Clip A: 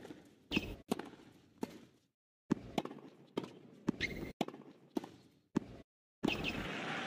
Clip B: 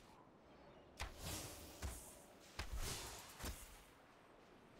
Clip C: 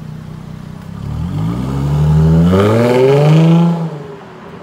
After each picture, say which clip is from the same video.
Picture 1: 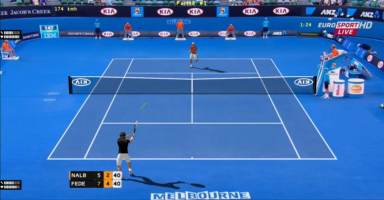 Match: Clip A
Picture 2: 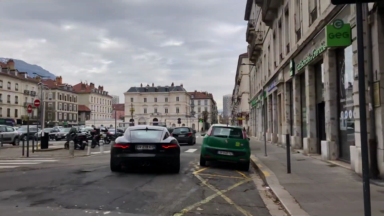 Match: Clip C